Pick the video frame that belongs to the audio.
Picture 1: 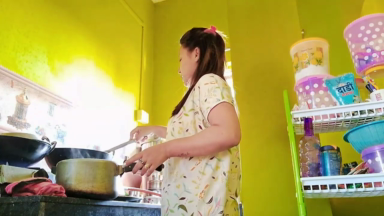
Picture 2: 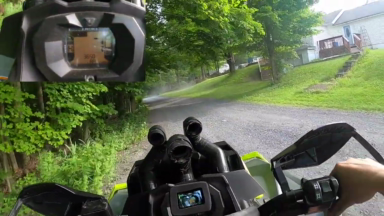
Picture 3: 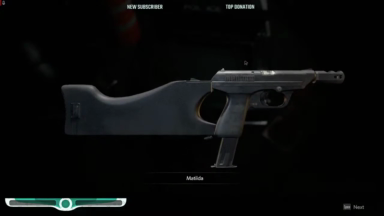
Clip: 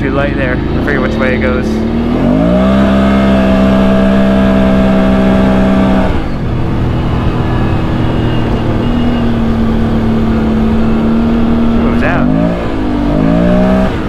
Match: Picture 2